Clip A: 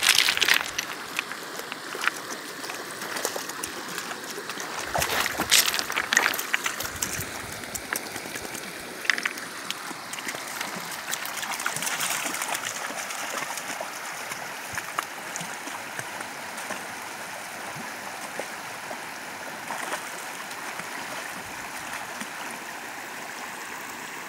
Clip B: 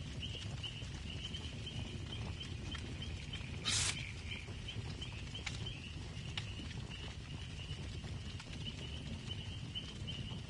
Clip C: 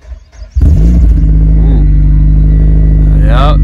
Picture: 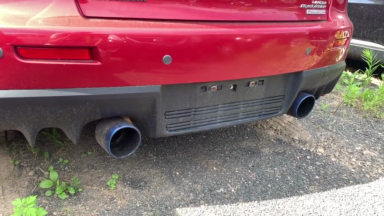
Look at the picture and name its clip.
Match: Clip C